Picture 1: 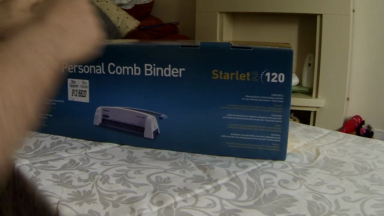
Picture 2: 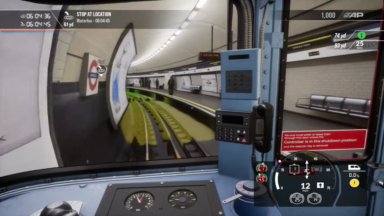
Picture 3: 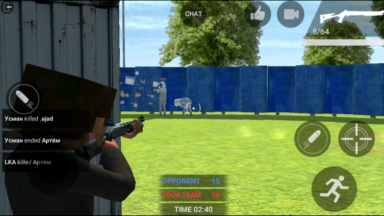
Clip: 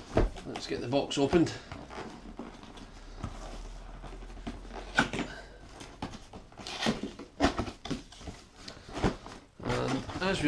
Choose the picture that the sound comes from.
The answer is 1